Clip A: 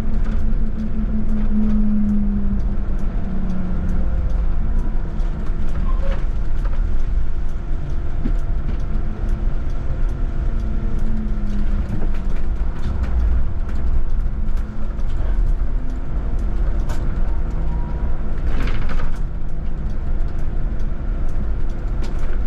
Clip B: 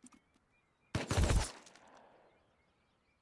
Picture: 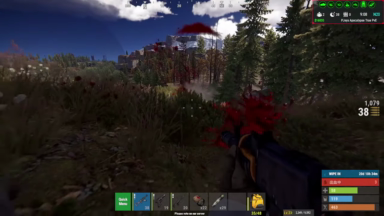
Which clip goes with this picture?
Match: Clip B